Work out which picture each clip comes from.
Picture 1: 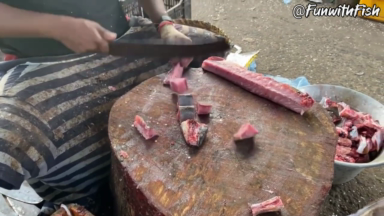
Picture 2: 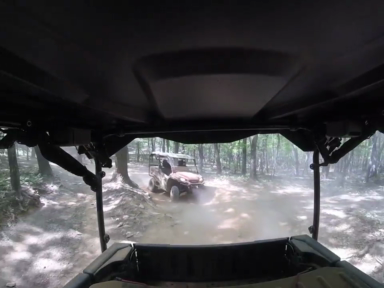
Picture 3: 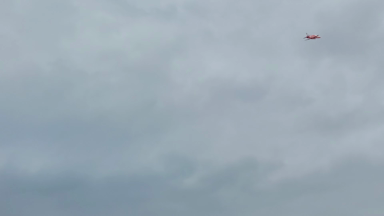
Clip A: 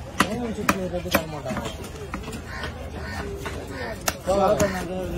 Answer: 1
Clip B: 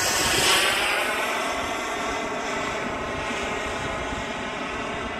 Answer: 3